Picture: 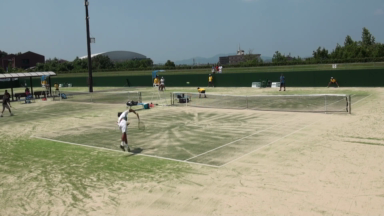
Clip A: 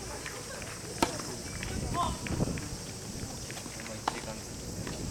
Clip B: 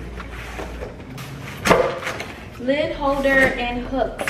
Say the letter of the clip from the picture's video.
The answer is A